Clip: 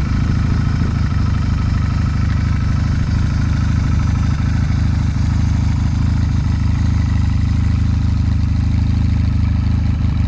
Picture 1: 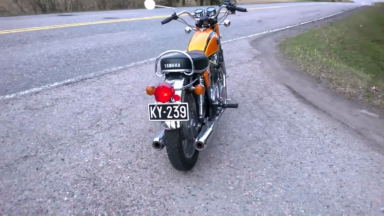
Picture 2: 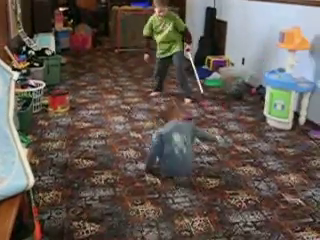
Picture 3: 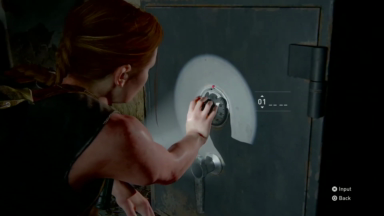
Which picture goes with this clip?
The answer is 1